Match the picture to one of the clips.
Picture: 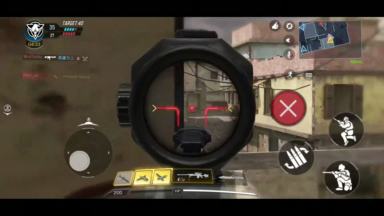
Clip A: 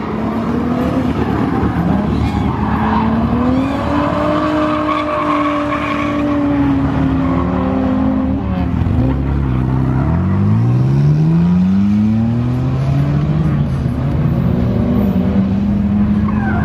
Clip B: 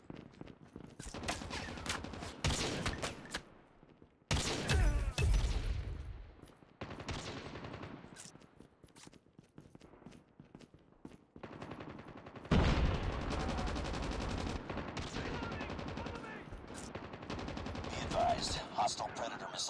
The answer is B